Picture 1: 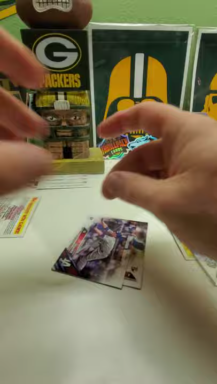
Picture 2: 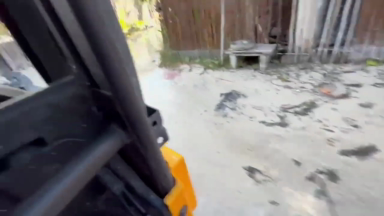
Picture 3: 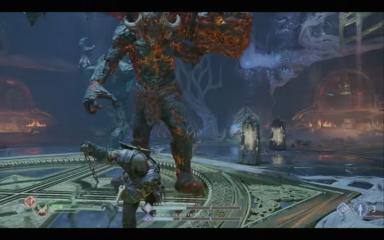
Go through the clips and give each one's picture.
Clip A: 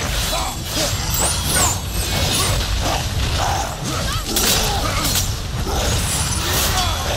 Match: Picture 3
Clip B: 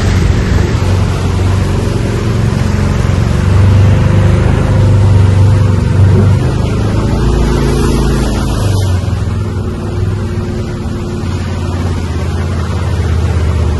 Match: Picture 2